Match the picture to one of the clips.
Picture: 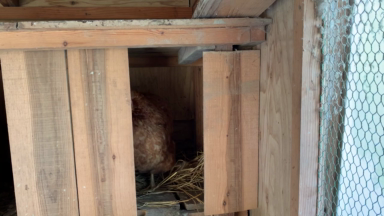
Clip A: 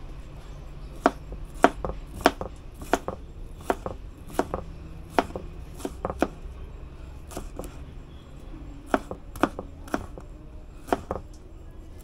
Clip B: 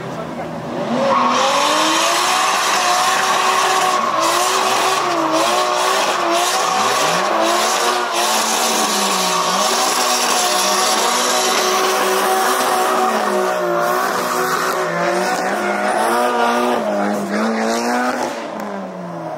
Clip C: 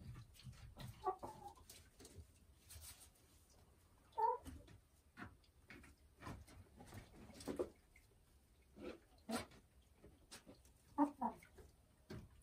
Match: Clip C